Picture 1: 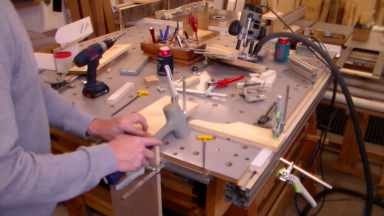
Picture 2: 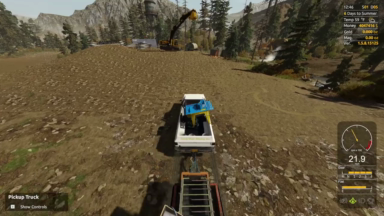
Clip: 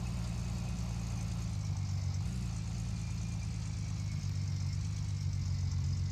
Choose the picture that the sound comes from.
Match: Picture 2